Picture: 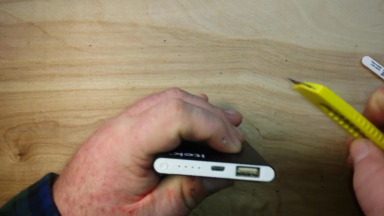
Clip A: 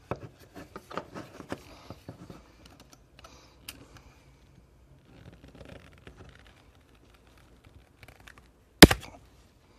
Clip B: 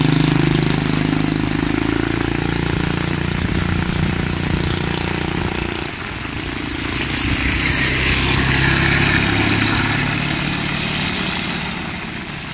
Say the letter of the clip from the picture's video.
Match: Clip A